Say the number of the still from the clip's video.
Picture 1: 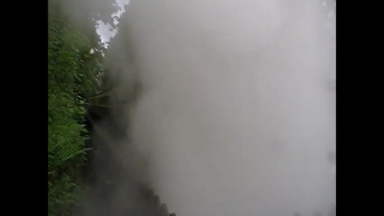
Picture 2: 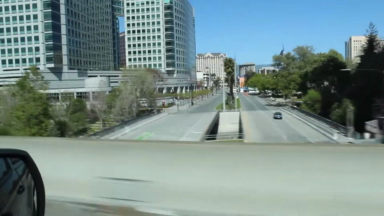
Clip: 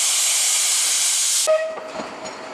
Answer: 1